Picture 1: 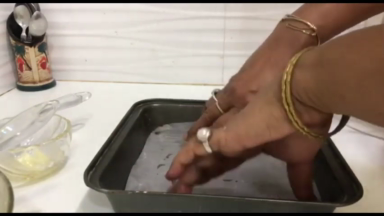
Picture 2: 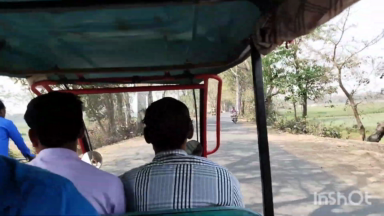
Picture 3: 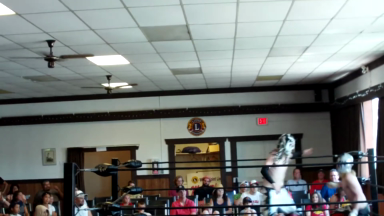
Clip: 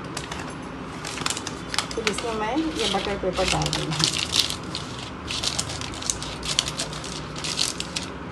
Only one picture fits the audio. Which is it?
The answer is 1